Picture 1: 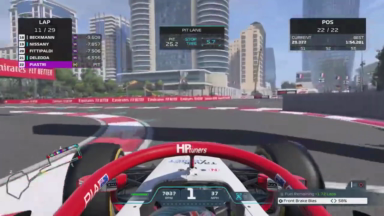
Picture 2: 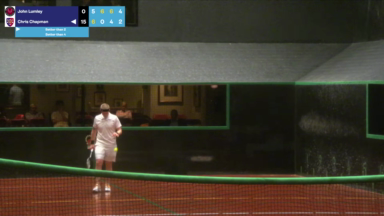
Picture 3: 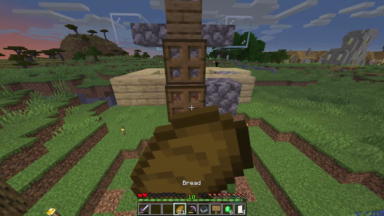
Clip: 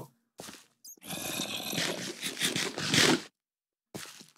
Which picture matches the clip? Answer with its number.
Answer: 3